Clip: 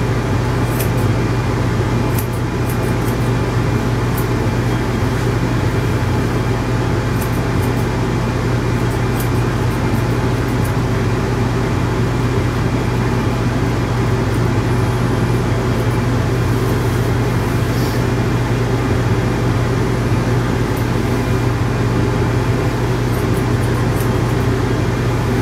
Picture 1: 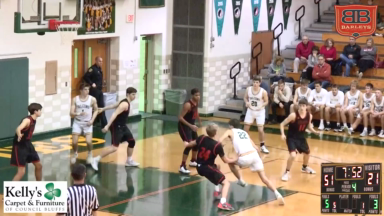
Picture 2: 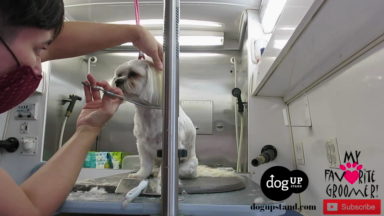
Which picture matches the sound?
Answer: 2